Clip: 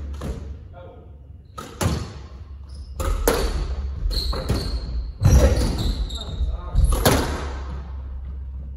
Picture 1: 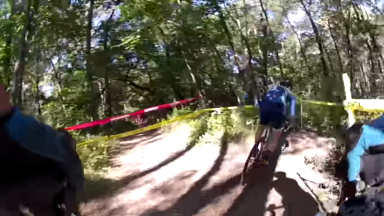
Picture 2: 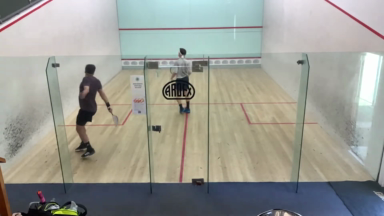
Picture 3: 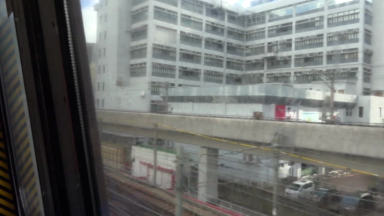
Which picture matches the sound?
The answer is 2